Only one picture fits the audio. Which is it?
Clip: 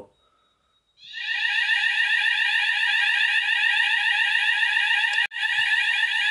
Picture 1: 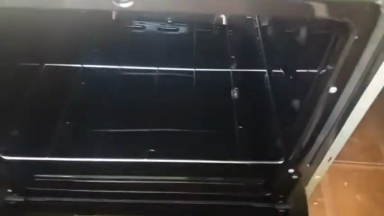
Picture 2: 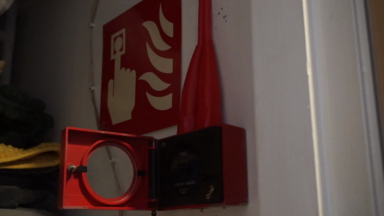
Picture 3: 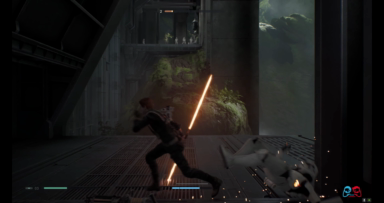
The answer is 2